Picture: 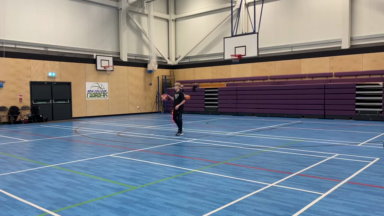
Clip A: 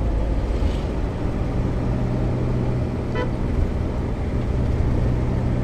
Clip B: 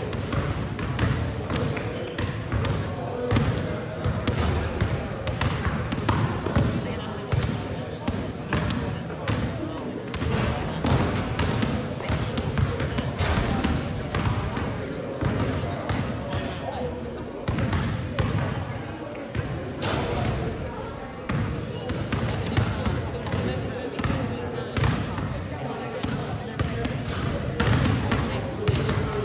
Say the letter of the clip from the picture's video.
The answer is B